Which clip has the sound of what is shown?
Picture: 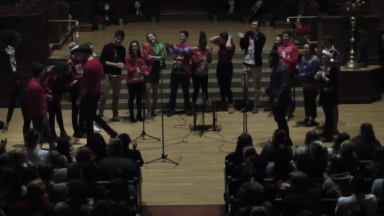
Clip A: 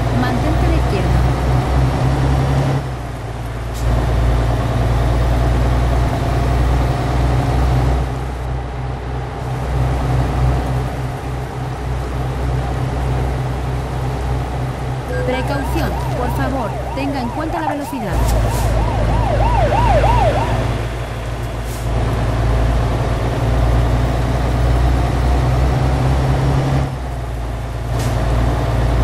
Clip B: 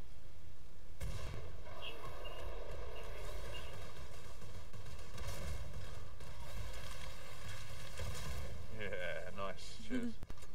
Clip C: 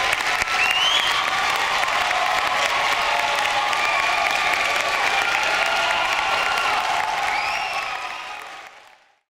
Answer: C